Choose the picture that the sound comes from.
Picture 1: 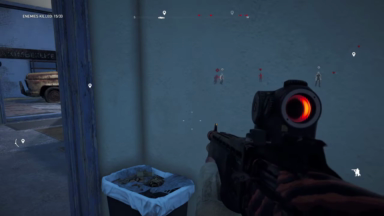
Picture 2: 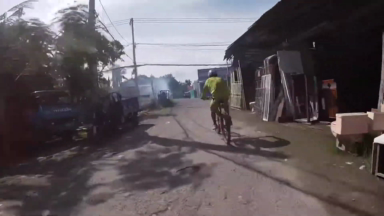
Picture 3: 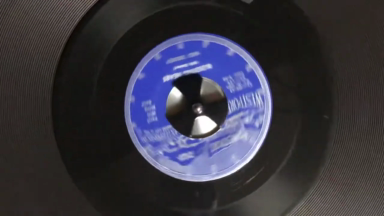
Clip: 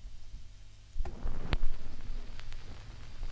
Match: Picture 3